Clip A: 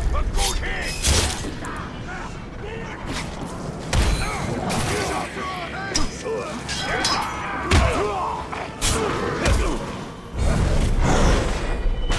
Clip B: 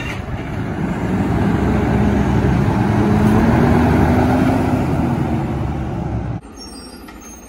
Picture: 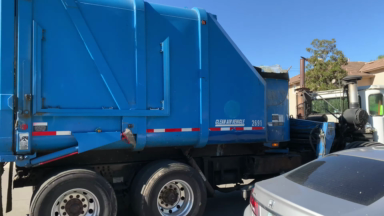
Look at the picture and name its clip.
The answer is B